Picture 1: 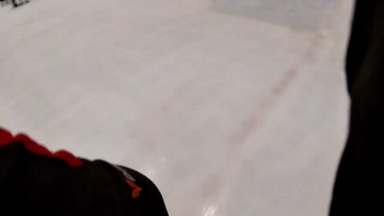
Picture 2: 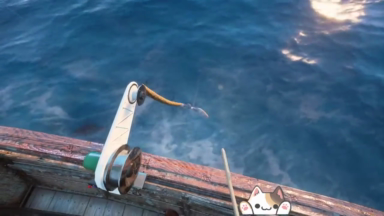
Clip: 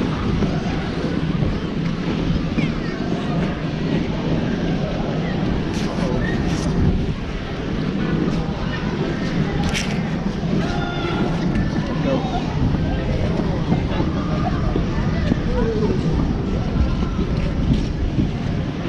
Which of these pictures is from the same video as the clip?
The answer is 1